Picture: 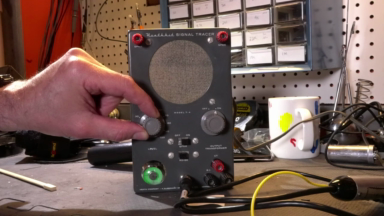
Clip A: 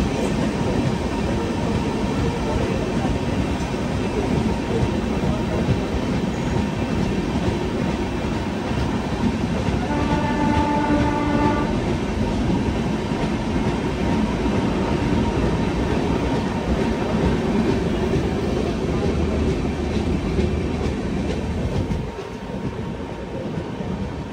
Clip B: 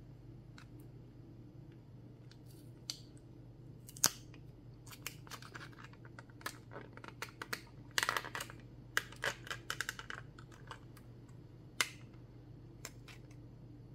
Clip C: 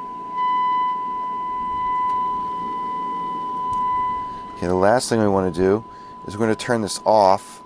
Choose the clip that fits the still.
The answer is C